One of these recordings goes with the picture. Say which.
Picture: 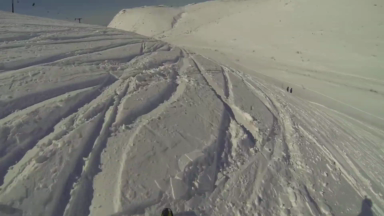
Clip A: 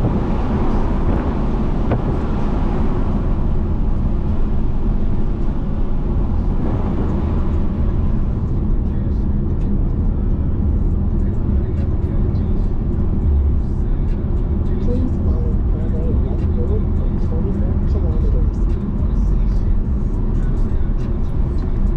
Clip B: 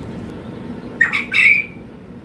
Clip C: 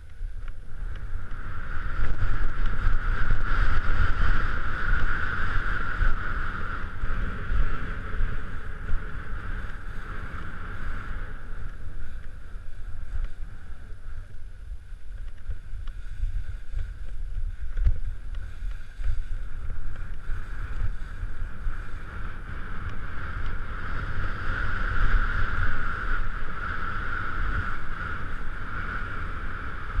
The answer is C